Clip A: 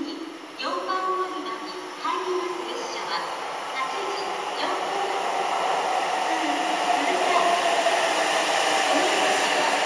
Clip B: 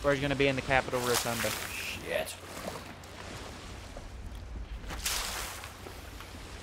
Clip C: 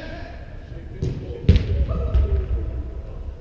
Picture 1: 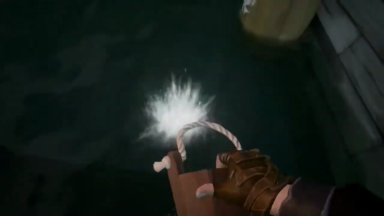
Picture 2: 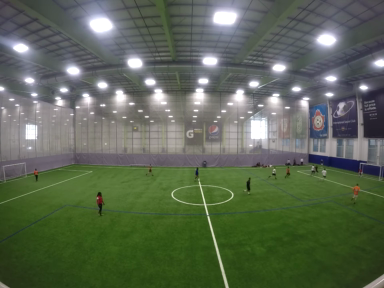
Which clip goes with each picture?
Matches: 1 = B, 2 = C